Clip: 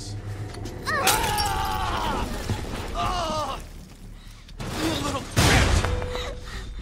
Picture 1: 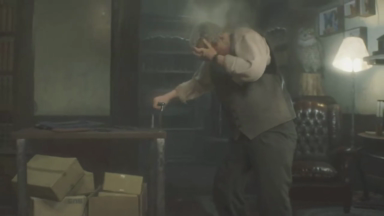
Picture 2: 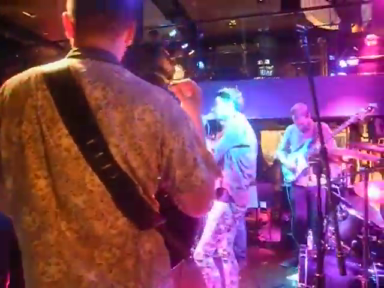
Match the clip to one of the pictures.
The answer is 1